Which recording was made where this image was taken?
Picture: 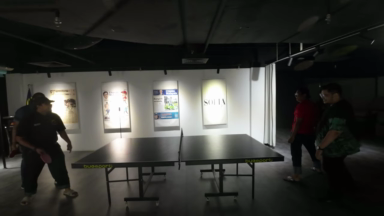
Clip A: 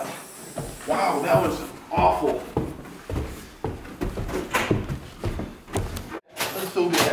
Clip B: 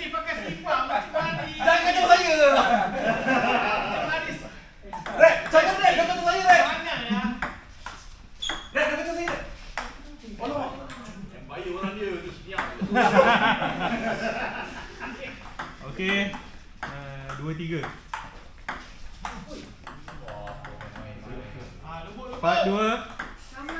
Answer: B